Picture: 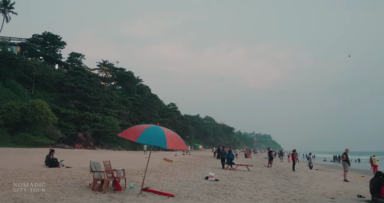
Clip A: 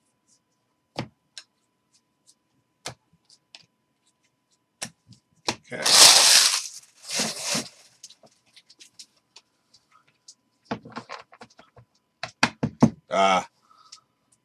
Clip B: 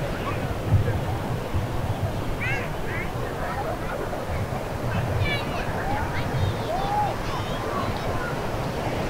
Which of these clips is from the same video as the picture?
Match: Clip B